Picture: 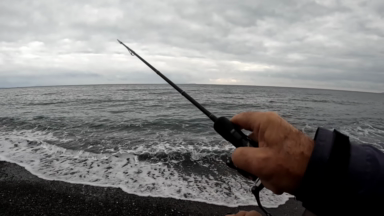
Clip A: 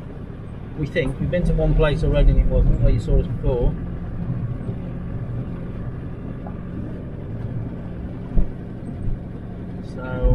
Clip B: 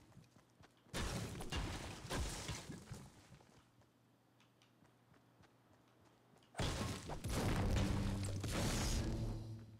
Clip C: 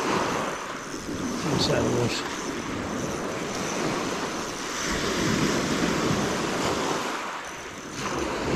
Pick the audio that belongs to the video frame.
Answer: C